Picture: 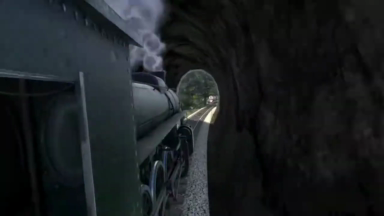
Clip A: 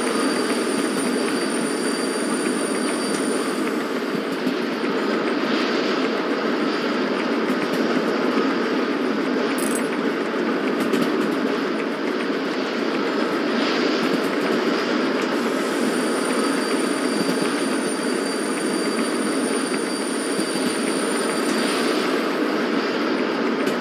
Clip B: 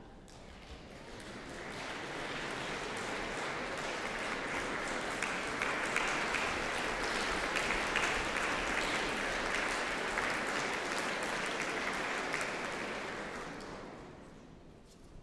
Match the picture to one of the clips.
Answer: A